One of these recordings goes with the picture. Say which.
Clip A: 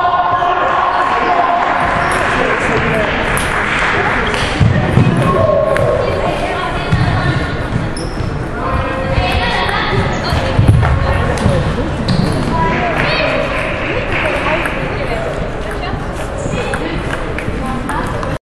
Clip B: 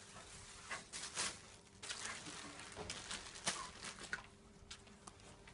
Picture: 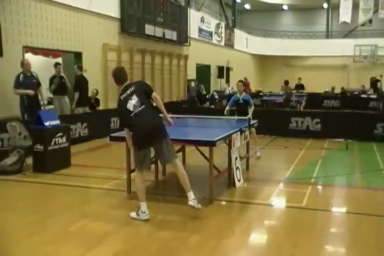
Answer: A